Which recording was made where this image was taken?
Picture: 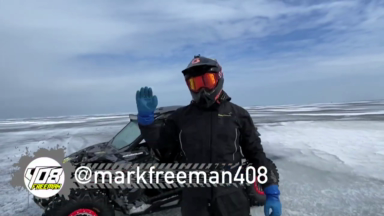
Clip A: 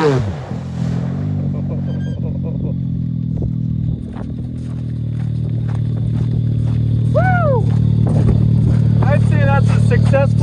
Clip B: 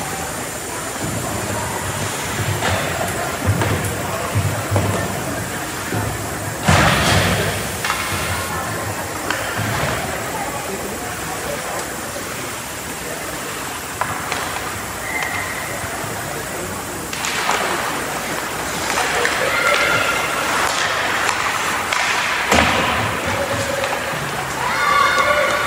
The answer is A